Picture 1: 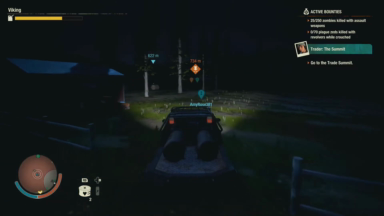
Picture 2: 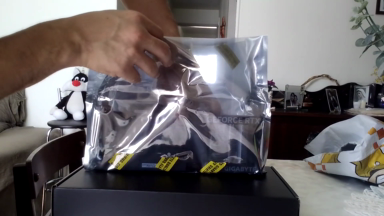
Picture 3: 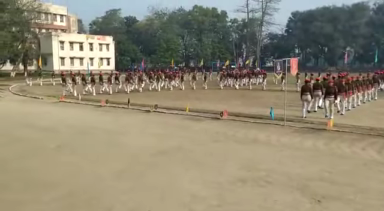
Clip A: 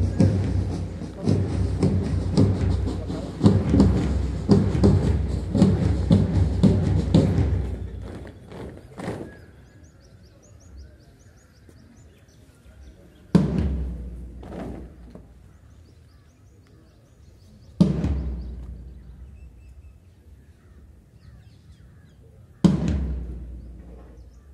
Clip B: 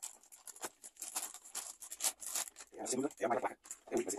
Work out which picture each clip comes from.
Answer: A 3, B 2